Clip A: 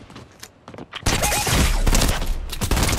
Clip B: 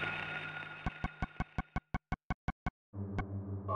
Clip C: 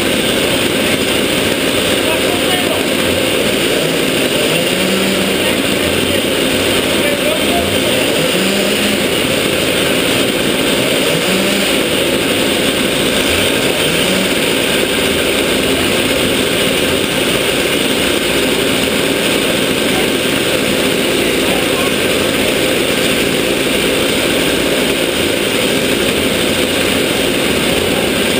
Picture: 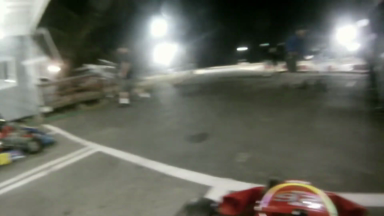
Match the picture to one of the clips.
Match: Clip C